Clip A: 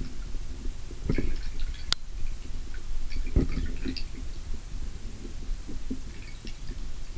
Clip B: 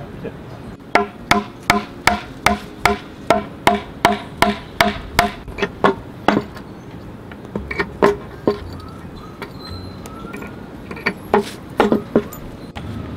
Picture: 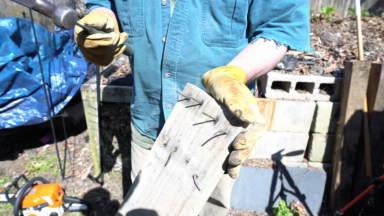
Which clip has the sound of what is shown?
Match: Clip B